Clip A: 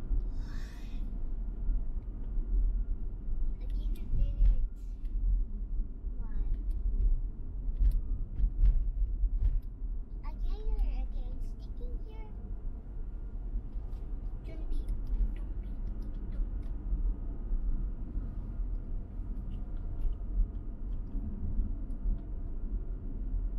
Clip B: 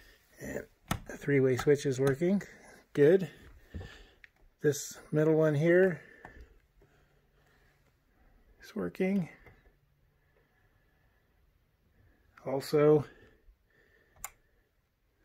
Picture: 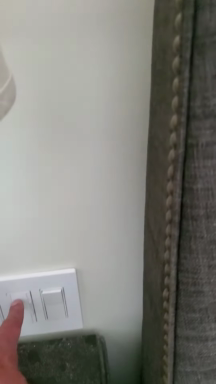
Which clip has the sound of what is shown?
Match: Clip B